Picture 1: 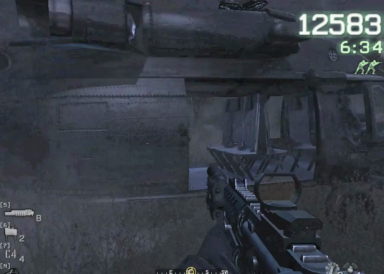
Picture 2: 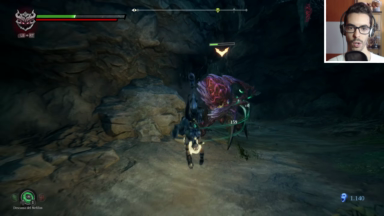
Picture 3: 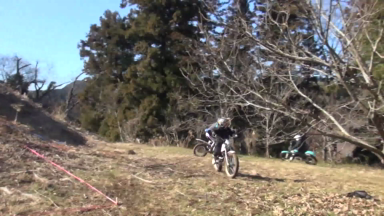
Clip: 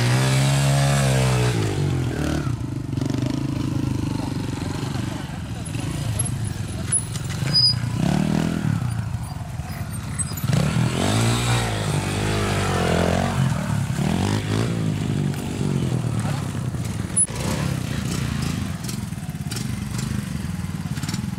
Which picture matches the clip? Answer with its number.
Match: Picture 3